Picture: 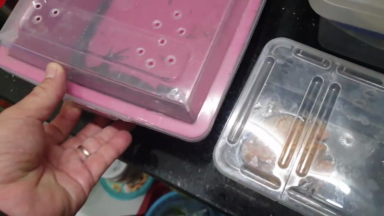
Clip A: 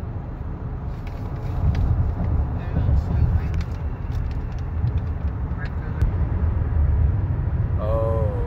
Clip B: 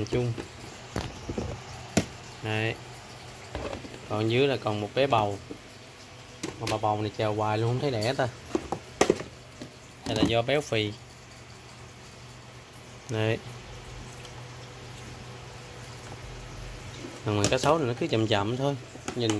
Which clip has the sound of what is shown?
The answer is B